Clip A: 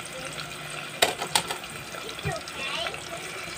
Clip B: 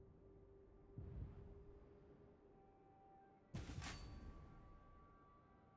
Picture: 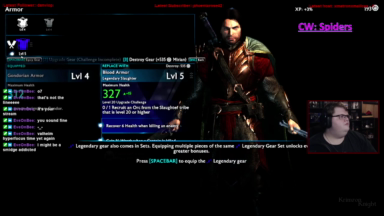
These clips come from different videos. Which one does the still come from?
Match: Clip B